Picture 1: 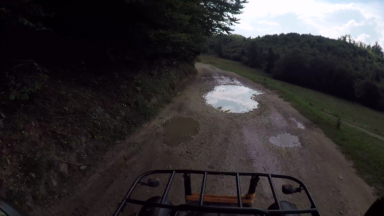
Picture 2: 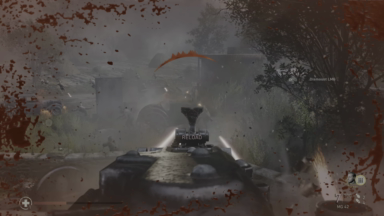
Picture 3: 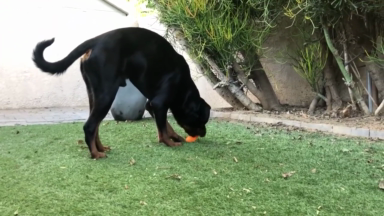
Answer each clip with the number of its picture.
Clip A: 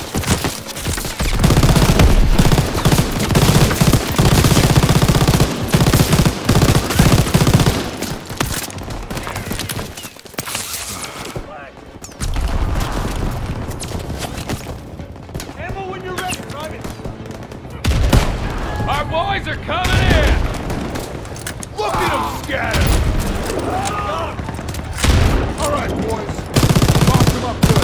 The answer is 2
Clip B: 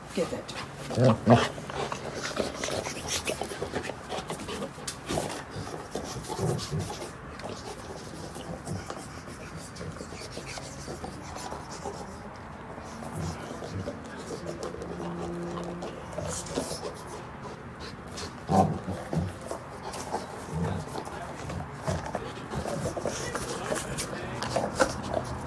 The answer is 3